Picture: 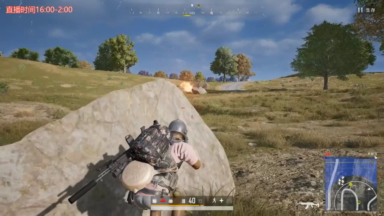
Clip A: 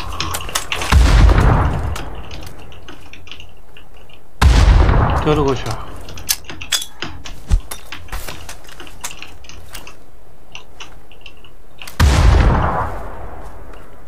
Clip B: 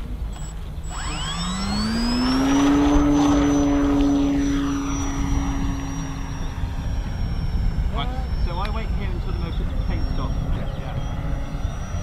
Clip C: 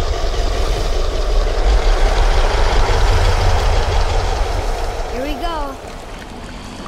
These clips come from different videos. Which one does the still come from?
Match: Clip A